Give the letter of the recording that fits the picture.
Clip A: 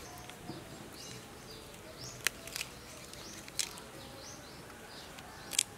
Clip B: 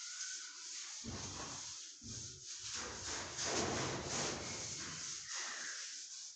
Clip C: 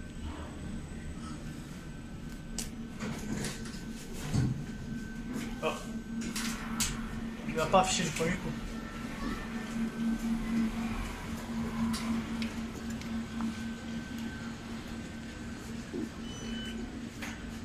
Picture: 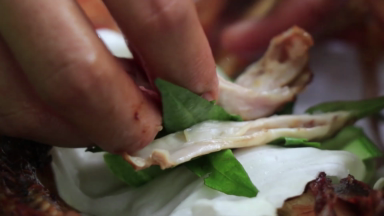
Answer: A